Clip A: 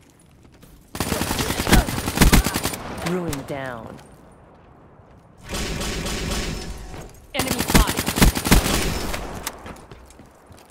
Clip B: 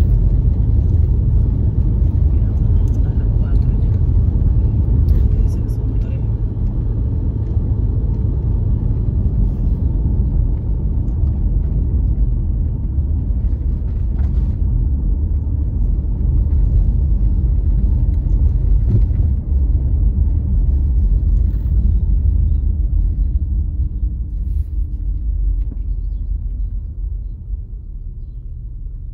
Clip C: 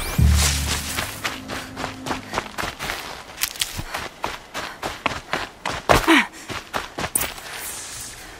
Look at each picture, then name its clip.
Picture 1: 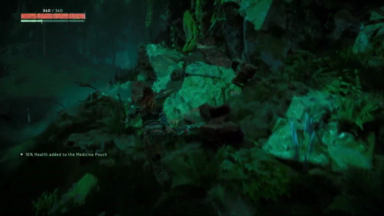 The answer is C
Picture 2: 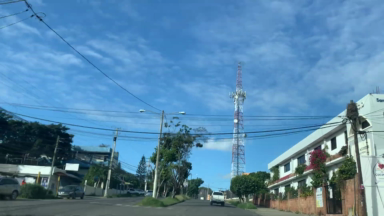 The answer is B